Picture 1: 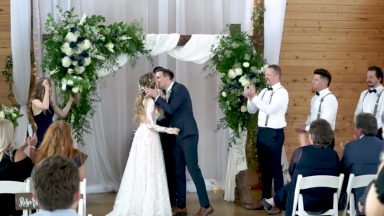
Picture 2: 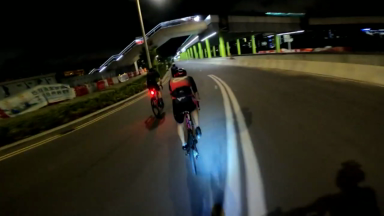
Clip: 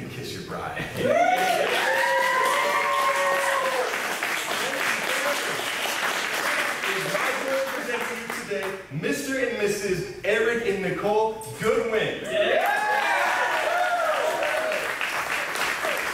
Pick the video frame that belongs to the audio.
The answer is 1